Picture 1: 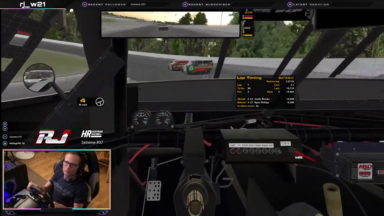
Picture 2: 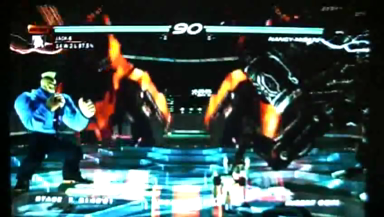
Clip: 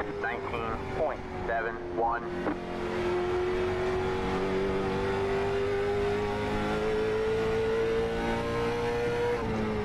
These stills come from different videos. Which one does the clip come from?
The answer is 1